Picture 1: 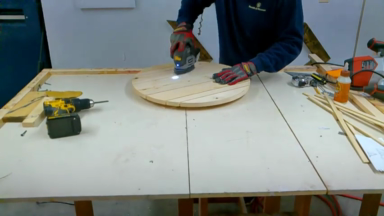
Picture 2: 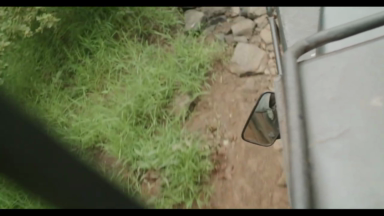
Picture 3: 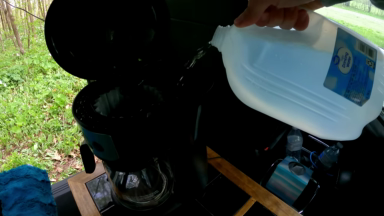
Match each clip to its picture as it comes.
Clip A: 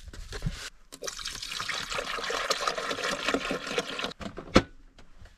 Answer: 3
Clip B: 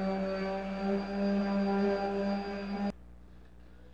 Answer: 1